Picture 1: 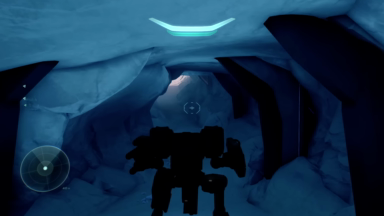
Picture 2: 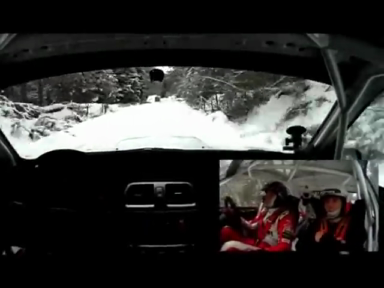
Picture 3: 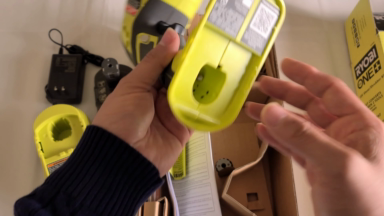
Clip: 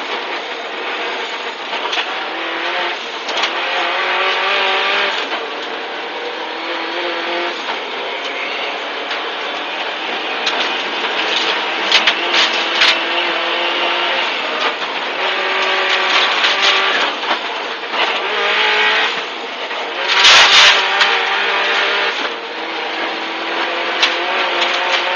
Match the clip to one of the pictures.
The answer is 2